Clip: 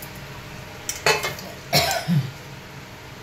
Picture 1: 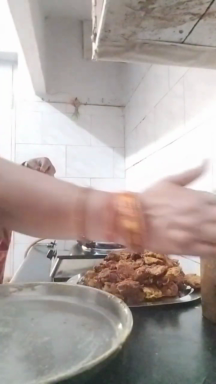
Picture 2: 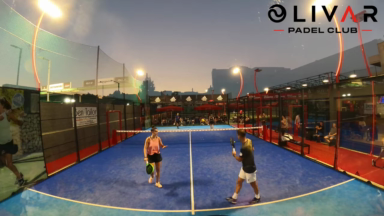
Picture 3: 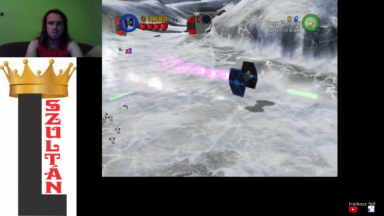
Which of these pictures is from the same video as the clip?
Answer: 1